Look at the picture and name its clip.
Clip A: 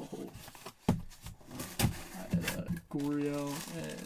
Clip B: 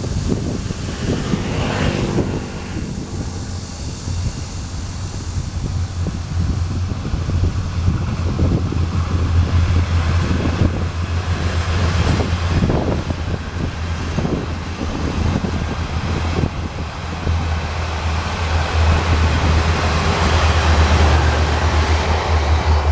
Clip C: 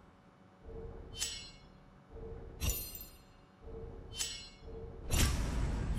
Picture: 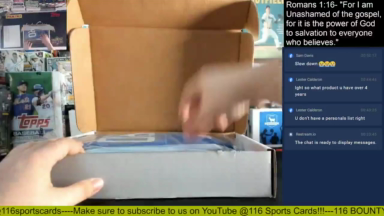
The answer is A